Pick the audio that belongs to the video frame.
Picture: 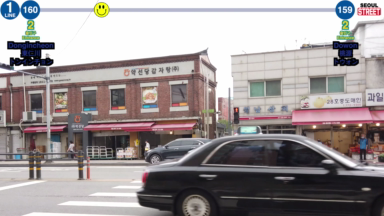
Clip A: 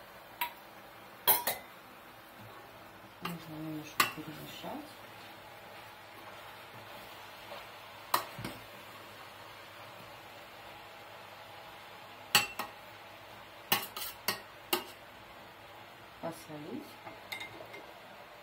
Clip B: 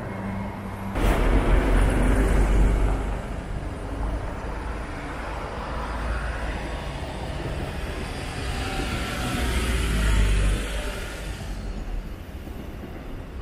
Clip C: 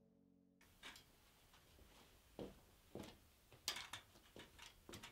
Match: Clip B